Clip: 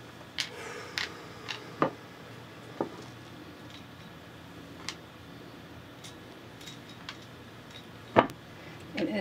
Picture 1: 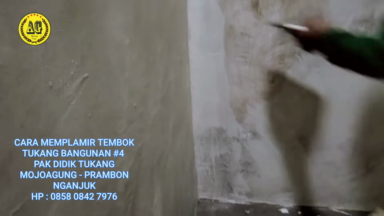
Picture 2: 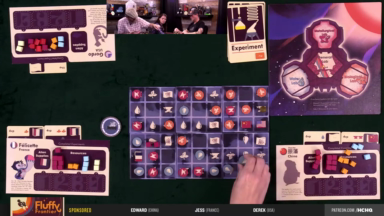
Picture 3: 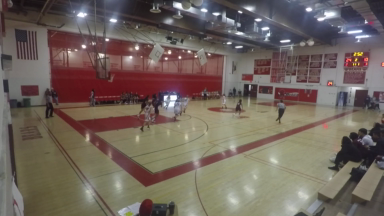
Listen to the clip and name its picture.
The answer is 2